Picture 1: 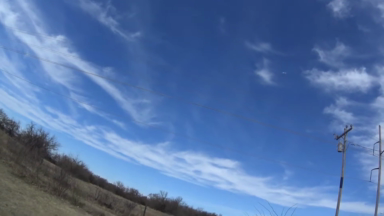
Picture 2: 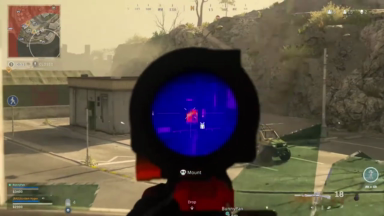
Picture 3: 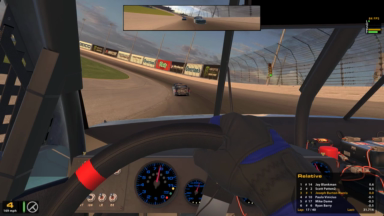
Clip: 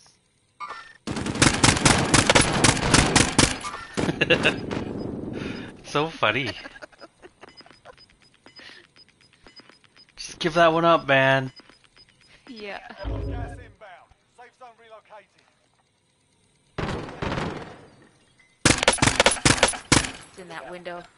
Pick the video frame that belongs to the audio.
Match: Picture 2